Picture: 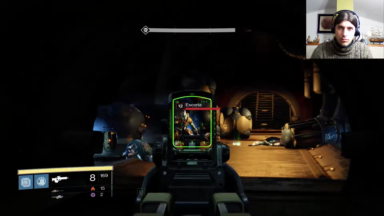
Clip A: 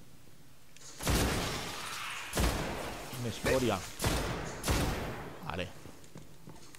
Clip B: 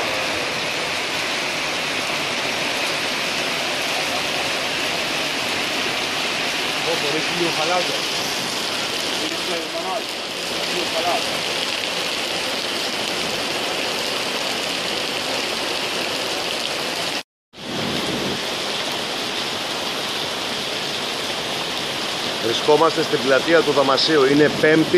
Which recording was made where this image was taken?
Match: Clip A